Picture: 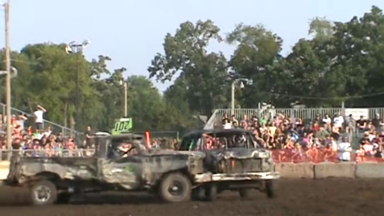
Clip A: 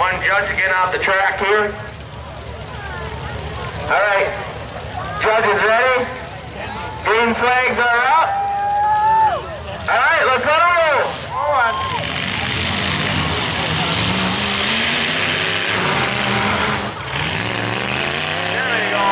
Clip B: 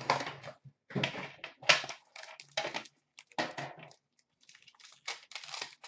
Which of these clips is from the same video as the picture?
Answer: A